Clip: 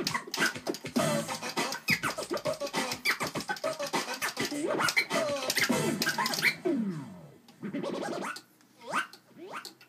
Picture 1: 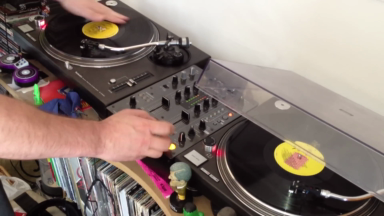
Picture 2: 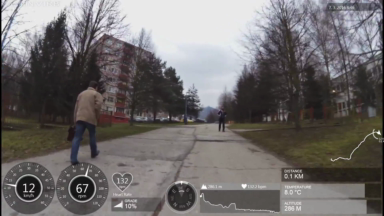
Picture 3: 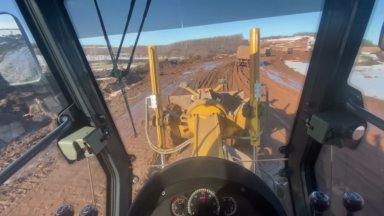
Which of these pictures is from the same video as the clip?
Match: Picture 1